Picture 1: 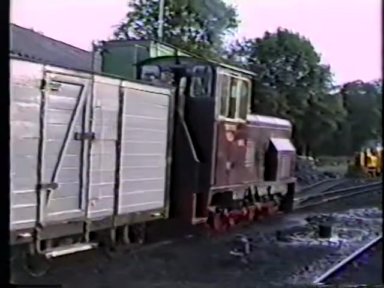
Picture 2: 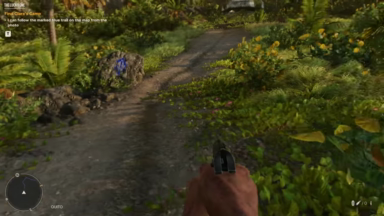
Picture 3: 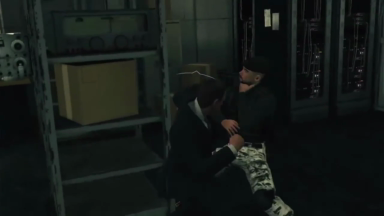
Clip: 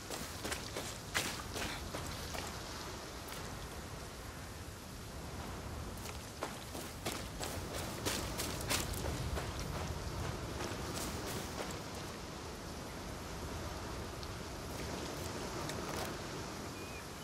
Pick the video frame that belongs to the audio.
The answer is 2